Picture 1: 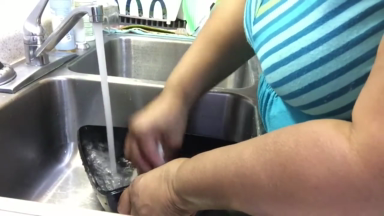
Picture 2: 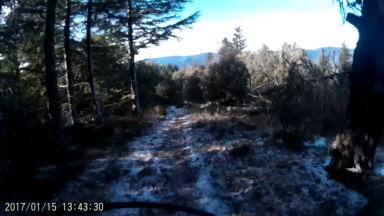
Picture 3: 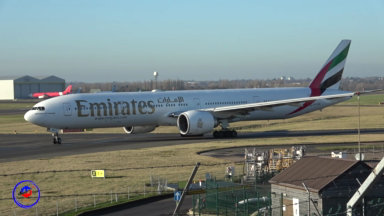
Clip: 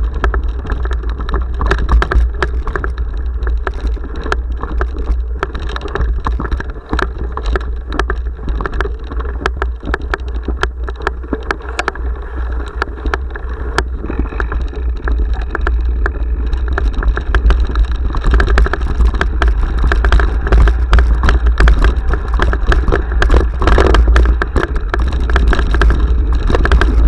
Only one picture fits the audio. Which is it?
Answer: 2